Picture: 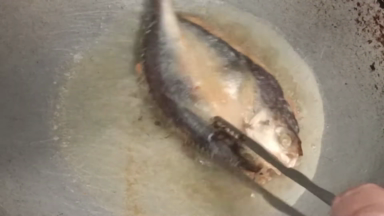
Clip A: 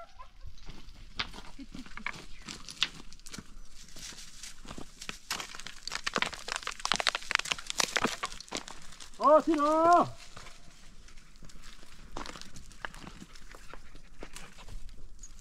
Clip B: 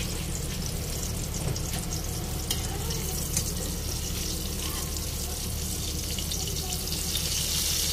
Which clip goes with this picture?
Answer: B